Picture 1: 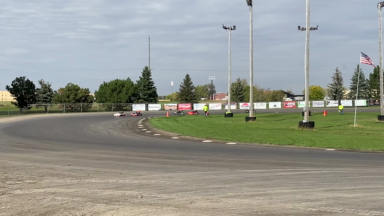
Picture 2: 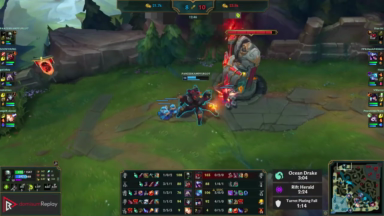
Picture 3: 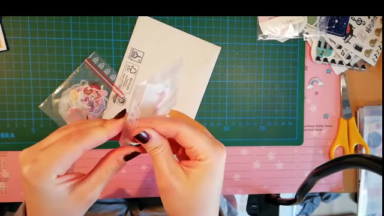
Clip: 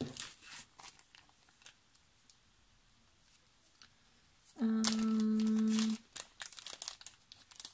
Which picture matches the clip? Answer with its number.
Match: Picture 3